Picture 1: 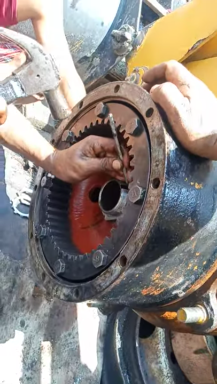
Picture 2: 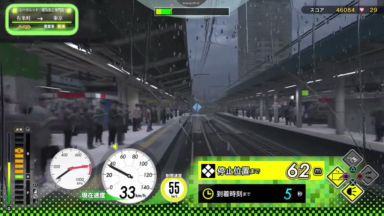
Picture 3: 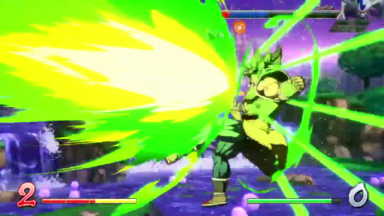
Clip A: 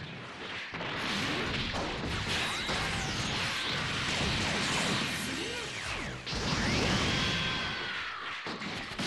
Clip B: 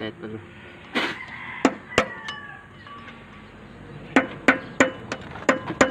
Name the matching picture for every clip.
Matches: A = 3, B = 1